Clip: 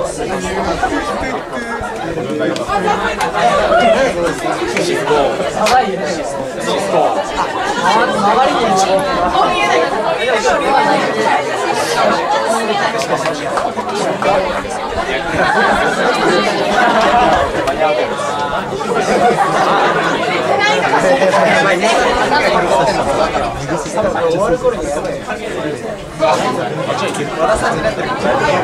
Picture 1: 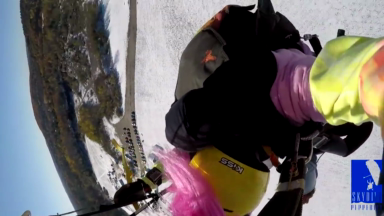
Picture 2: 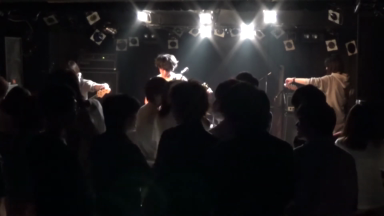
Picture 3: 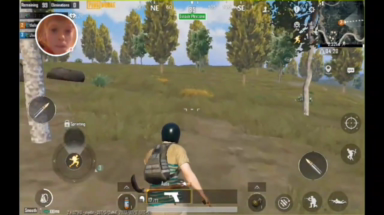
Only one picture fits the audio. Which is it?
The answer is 2